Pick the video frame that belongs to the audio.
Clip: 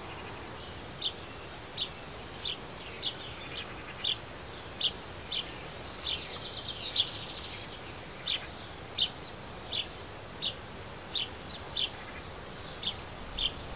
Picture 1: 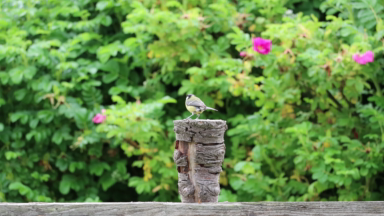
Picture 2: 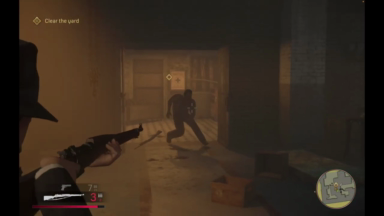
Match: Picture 1